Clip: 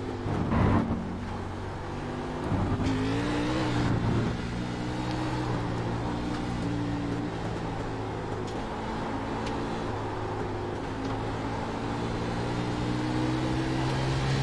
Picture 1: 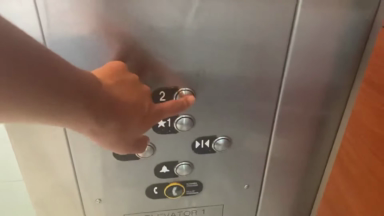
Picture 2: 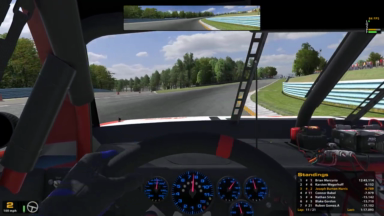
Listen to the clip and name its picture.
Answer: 2